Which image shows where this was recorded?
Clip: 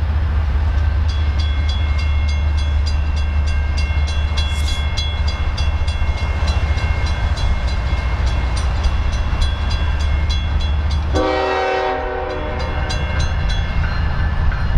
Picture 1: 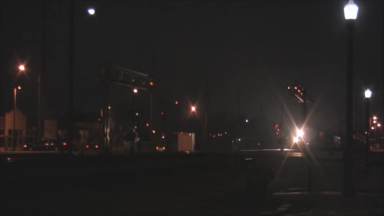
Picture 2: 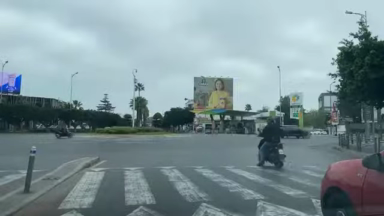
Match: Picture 1